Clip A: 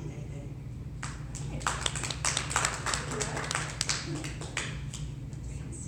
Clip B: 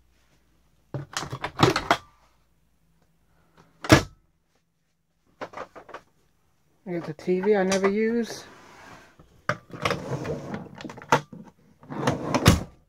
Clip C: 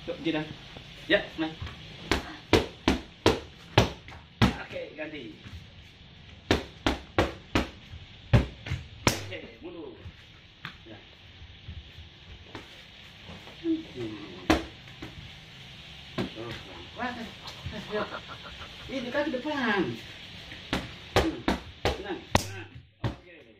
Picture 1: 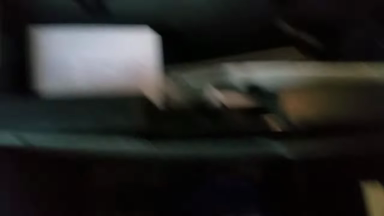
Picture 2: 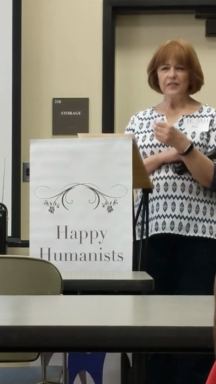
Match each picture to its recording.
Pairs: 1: B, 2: A